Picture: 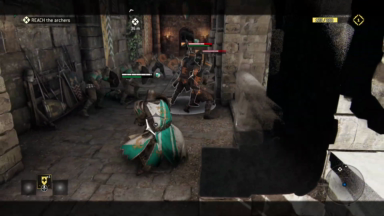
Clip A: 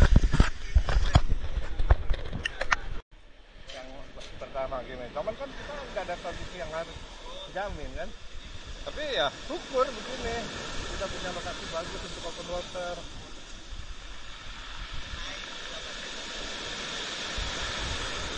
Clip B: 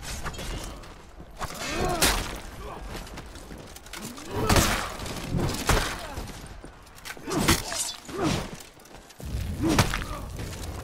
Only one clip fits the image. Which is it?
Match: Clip B